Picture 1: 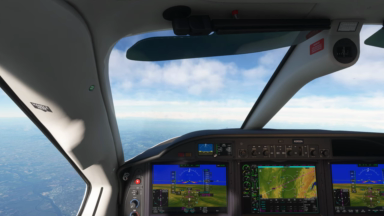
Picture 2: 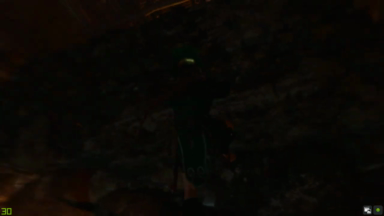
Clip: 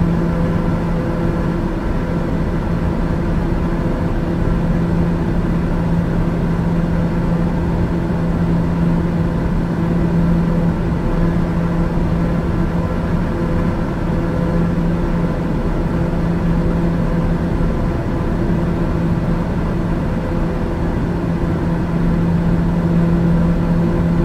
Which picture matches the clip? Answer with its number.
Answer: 1